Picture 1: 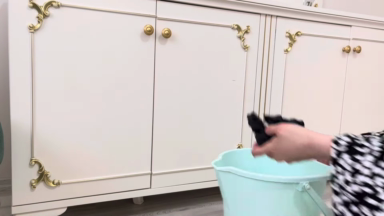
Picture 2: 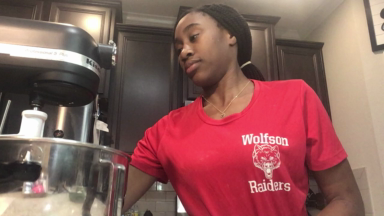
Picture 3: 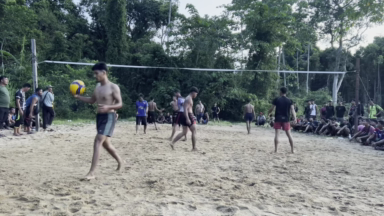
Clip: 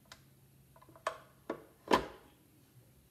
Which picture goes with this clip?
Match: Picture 2